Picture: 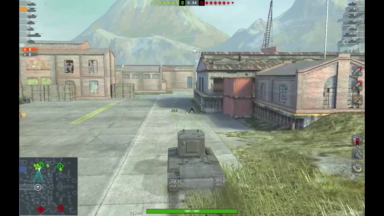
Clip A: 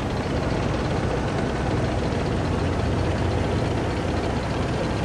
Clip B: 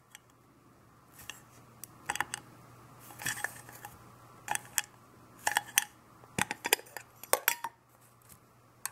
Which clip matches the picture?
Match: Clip A